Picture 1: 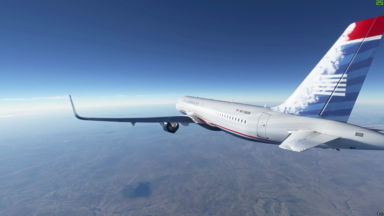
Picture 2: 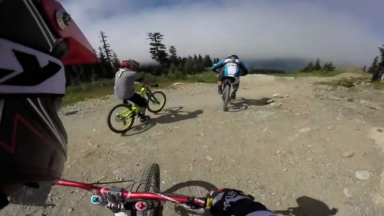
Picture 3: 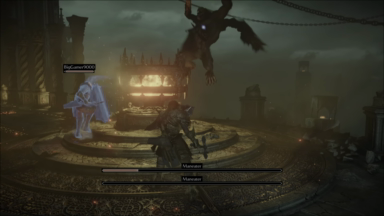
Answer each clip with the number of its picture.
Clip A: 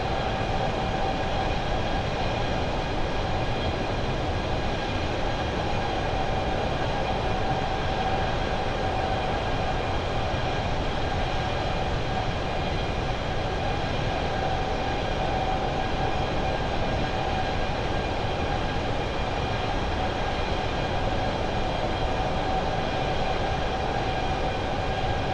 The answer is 1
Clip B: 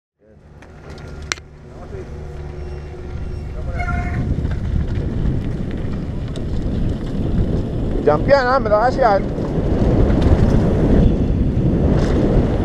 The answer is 2